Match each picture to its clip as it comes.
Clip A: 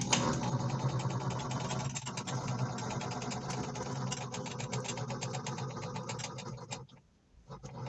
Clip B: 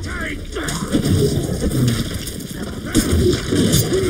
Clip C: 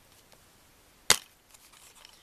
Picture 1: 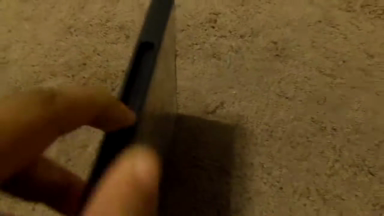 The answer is C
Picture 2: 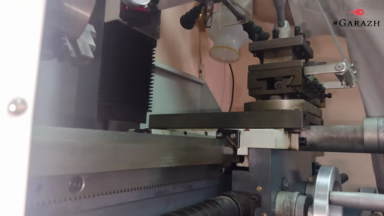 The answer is A